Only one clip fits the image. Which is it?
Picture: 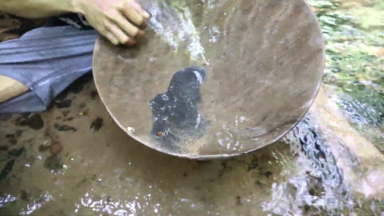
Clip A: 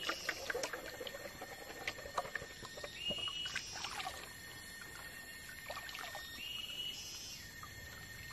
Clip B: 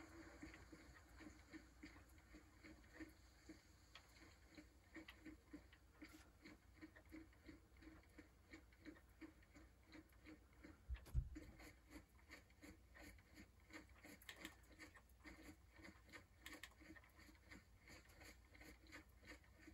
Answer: A